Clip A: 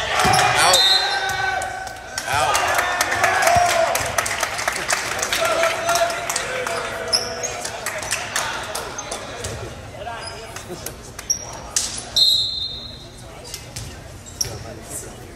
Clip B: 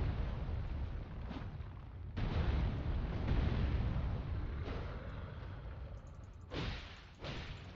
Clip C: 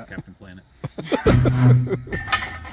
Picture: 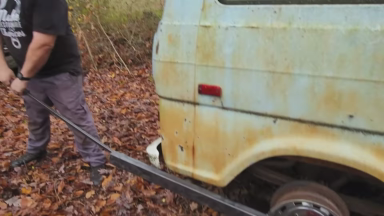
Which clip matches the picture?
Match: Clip C